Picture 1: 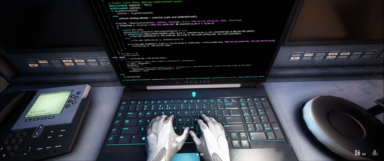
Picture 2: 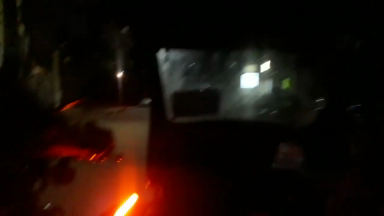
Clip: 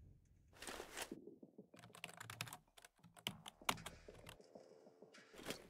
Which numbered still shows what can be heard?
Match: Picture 1